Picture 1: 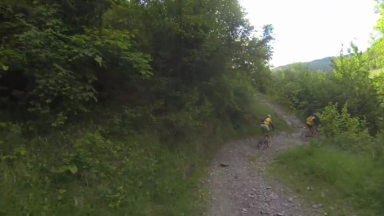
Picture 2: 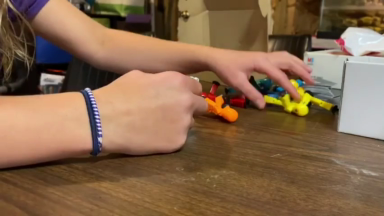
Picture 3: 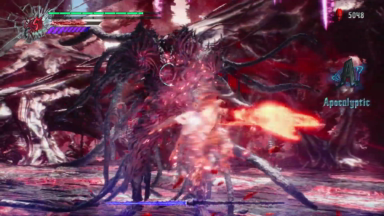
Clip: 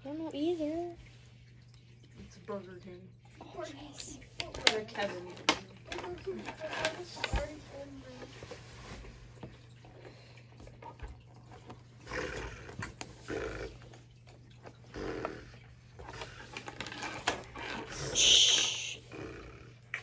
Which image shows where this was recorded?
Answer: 2